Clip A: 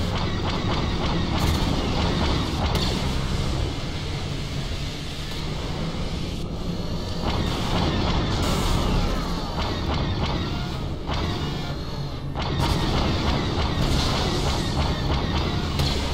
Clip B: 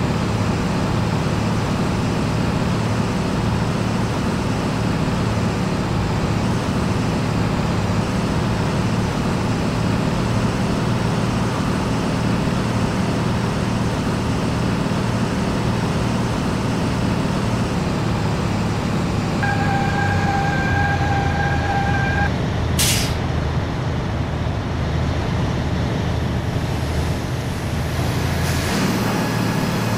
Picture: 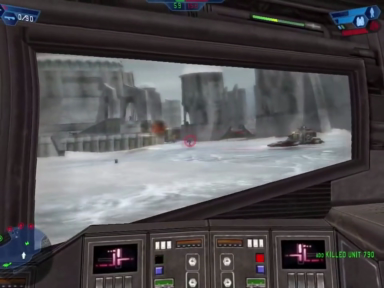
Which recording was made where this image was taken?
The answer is A